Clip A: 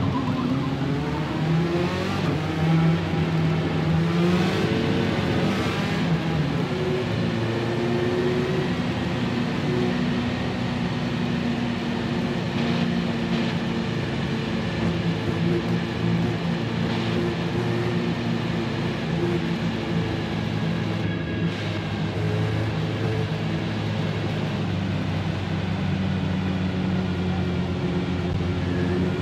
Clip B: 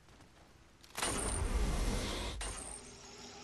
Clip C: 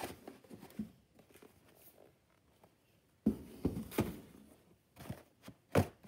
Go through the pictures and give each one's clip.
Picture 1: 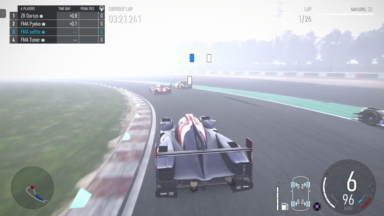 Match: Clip A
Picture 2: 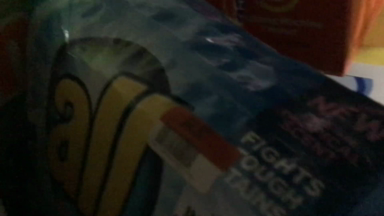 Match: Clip C